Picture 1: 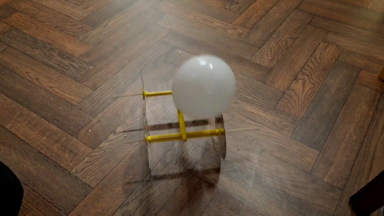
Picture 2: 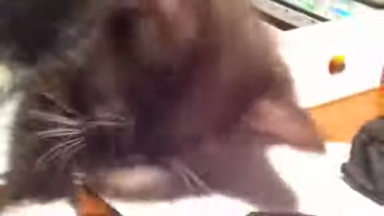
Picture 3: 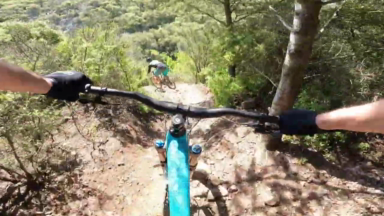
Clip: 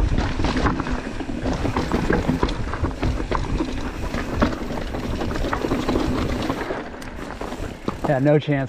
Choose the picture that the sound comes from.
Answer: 3